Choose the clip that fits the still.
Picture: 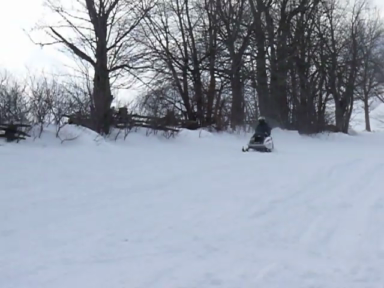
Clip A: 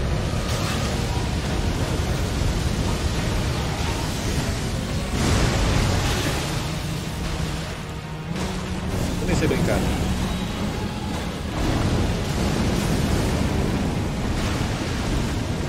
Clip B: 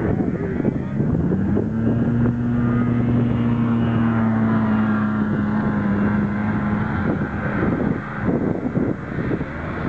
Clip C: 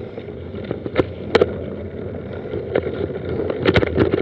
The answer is B